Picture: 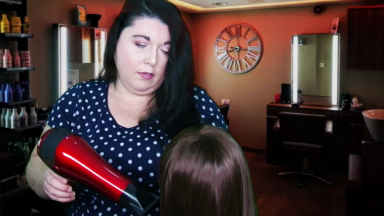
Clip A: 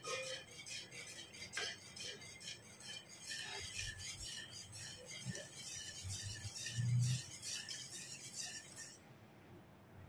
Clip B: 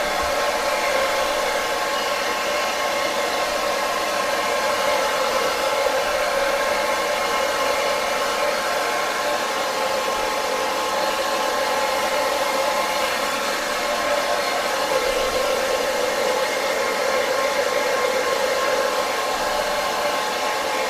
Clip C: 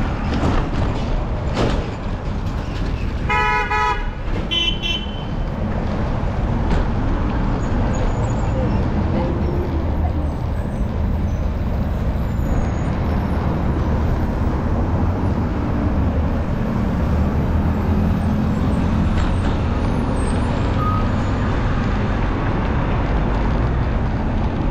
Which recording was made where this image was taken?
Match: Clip B